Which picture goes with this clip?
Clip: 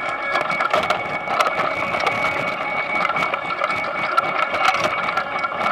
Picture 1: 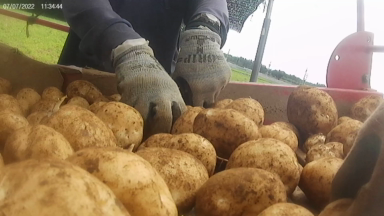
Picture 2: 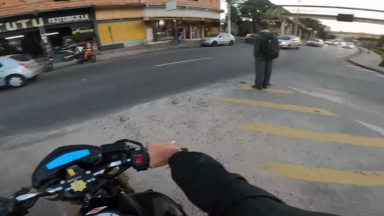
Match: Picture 1